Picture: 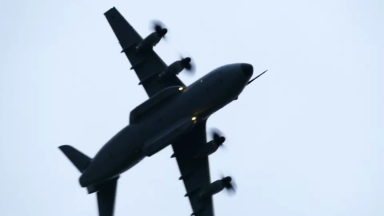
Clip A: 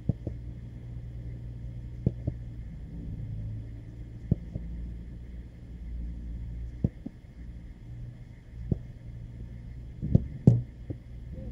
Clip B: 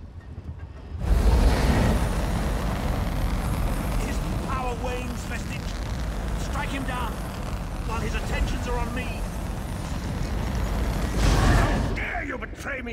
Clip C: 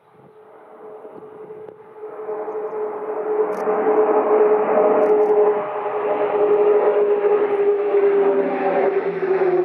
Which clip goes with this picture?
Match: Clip C